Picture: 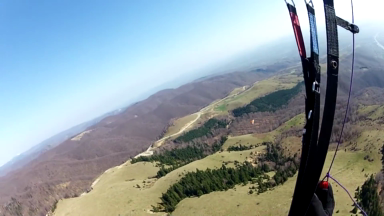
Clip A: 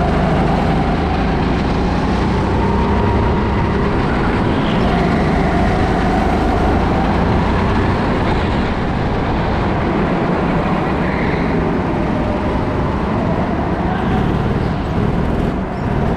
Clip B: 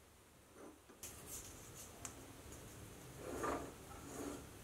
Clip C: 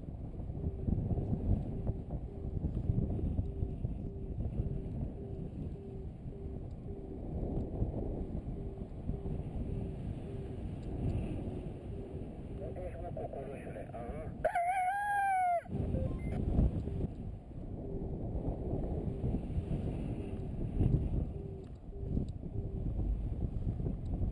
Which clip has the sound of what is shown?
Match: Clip C